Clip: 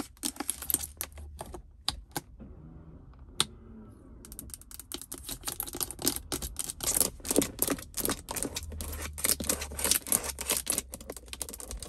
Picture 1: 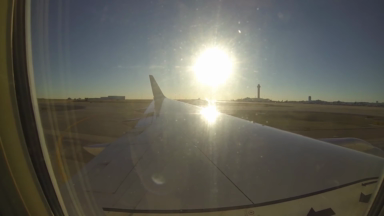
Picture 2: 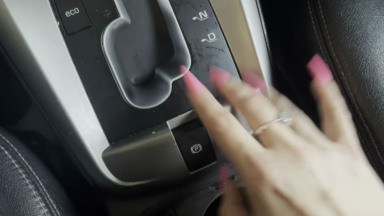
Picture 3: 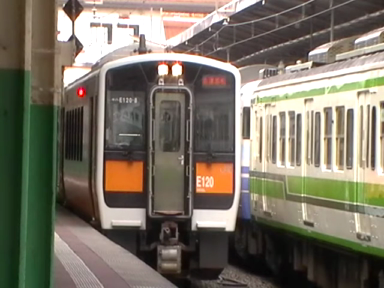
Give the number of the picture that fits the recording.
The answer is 2